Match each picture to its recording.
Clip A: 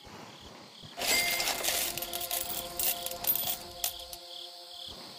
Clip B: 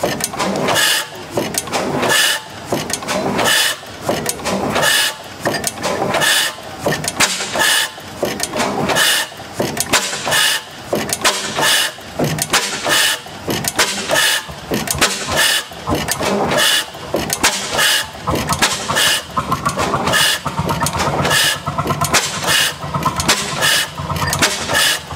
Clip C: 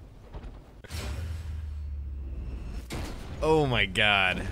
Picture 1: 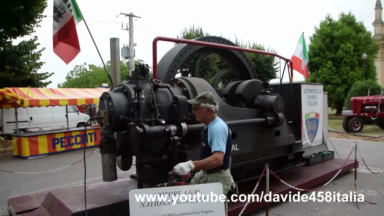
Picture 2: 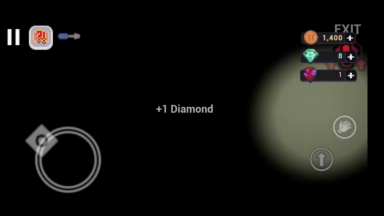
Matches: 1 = B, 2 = A